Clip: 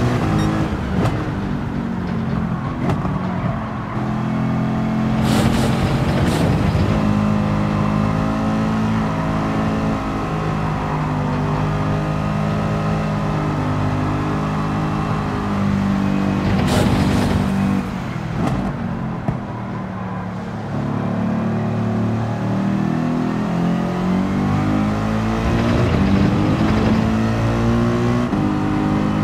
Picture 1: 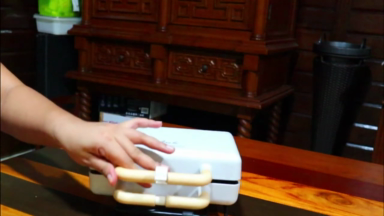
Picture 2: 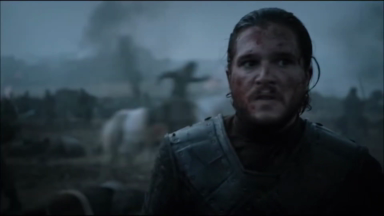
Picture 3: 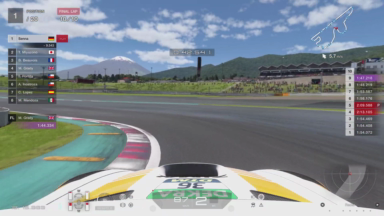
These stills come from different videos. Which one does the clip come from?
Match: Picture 3